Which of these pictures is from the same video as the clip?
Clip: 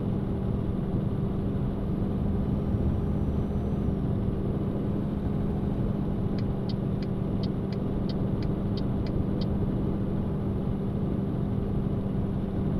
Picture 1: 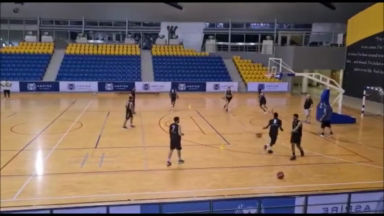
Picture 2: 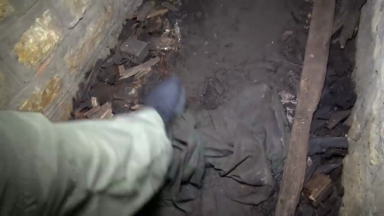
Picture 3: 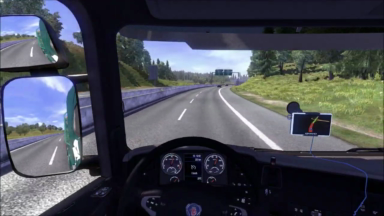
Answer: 3